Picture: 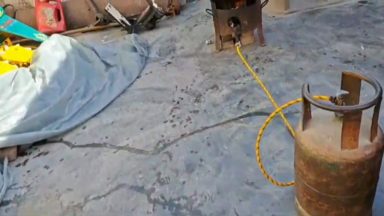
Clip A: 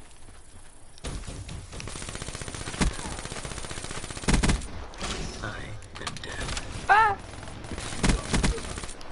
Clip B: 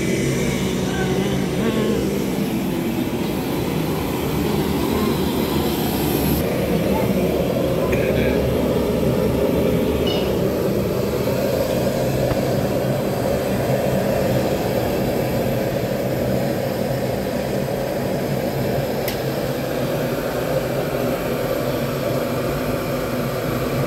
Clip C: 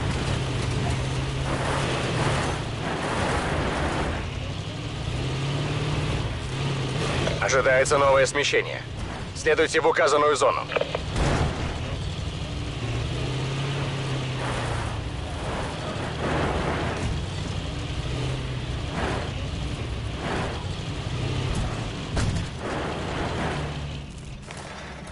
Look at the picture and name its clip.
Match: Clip B